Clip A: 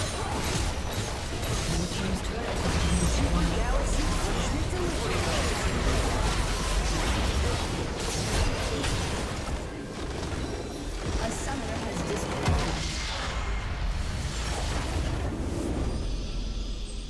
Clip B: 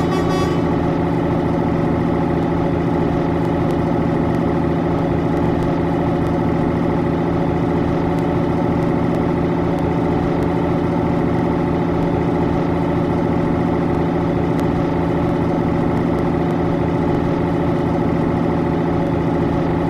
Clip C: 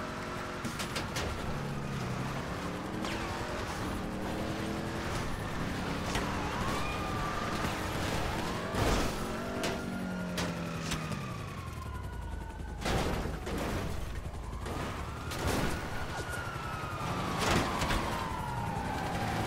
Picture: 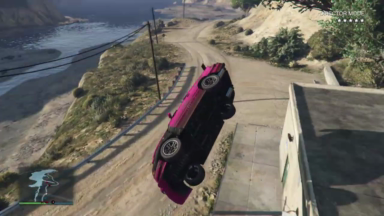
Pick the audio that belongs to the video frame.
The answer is C